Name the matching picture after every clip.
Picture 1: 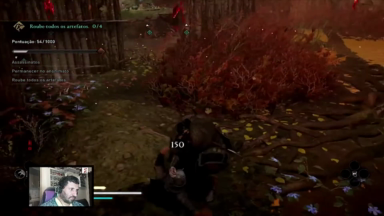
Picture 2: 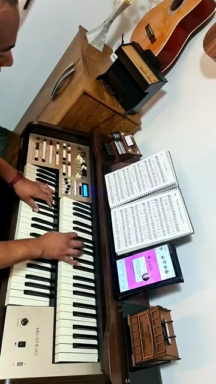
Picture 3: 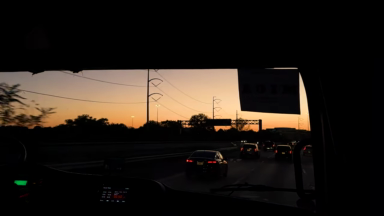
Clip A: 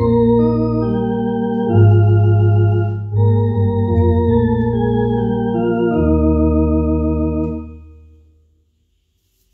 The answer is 2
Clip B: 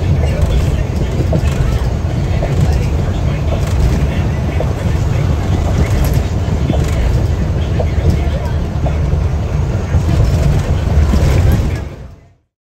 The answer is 3